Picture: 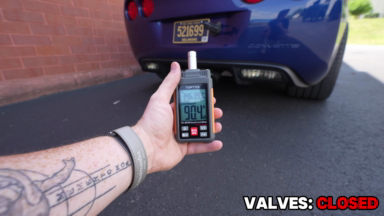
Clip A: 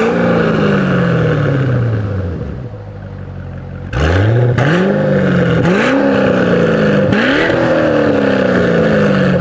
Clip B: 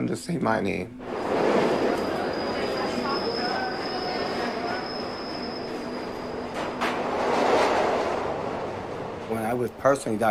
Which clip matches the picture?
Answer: A